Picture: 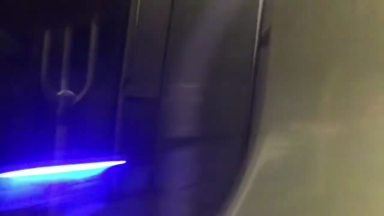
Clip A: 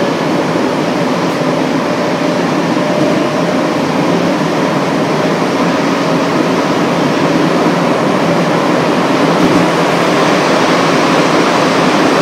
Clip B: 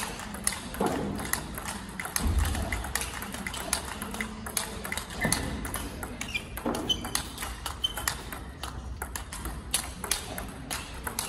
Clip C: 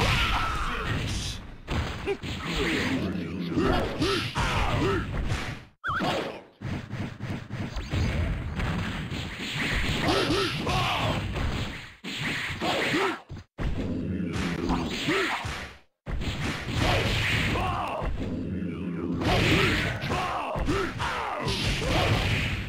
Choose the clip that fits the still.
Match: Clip A